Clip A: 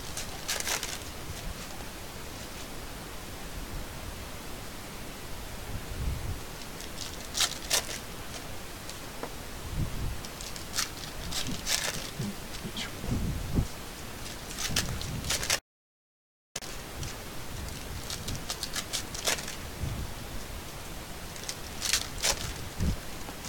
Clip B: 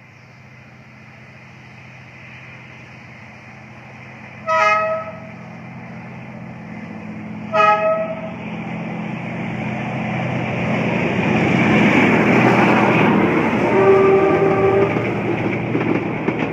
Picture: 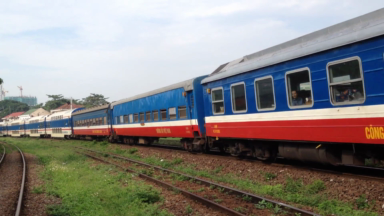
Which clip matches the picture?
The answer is B